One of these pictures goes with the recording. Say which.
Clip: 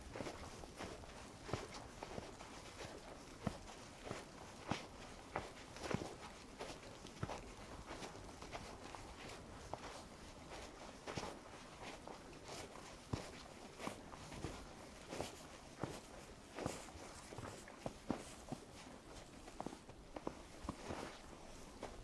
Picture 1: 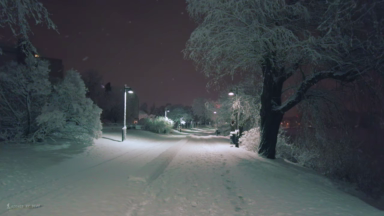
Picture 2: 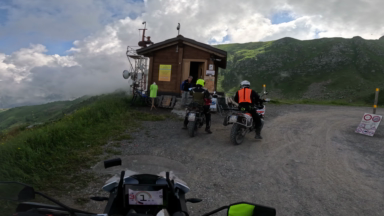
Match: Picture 1